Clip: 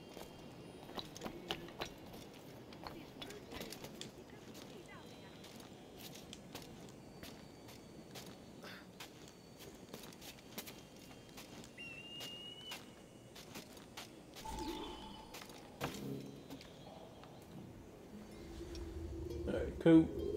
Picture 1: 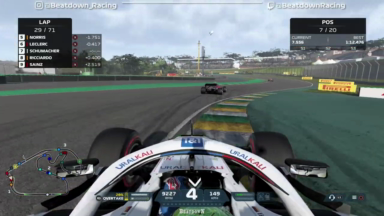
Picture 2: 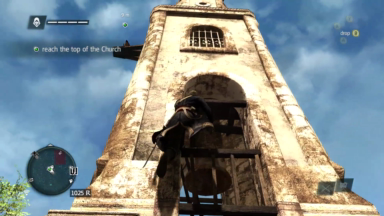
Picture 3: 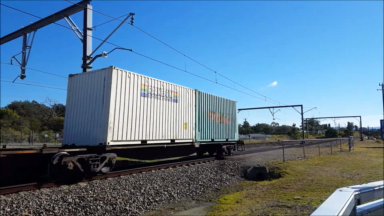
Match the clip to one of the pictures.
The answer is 2